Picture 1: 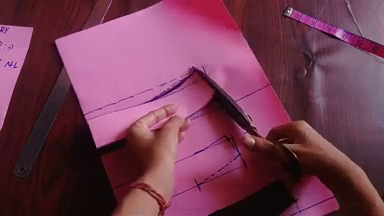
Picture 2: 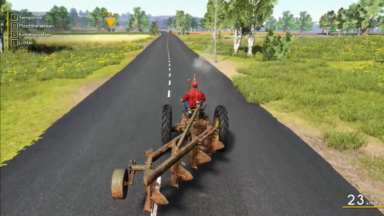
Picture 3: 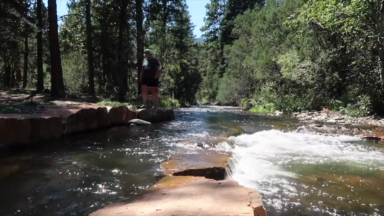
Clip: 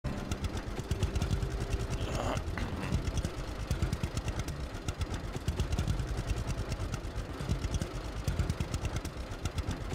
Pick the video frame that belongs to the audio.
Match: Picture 2